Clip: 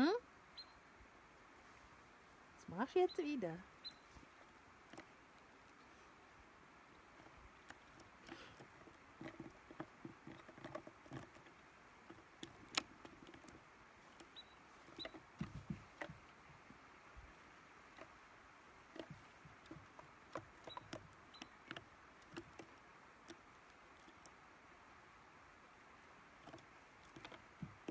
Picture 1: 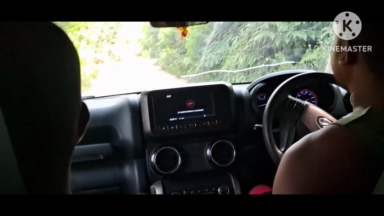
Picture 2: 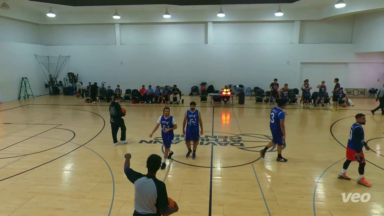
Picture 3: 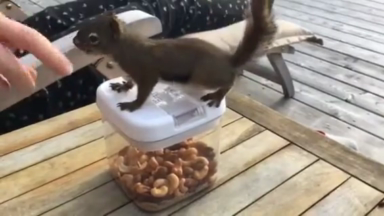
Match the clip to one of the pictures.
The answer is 3